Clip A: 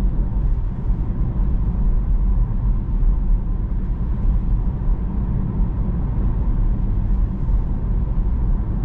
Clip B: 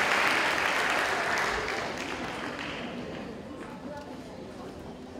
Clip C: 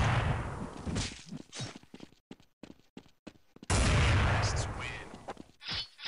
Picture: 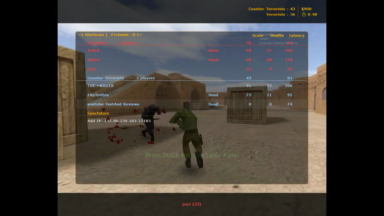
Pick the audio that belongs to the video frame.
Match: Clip C